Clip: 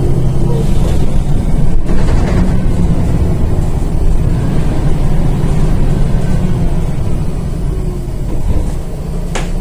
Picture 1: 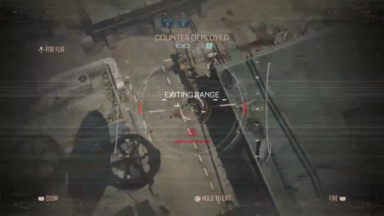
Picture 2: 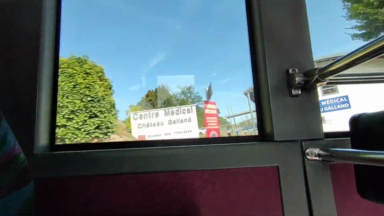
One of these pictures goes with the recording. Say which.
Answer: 2